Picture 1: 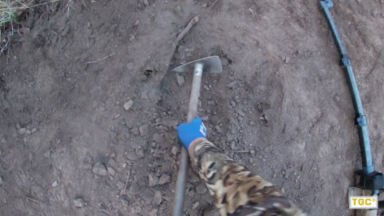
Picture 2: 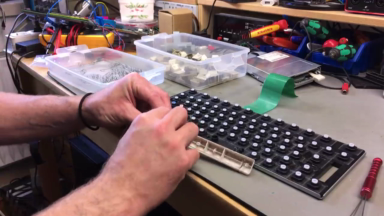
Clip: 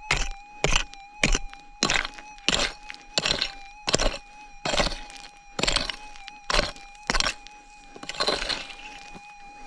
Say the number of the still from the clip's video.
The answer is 1